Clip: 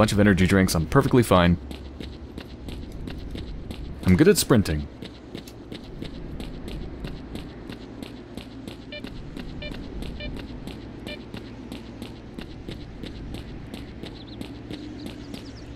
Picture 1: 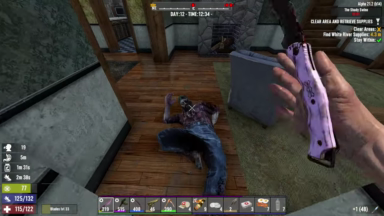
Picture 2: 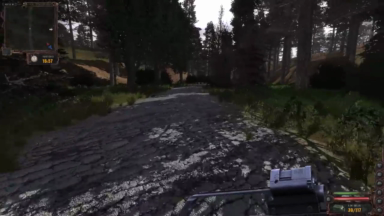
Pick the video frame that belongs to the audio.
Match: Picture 2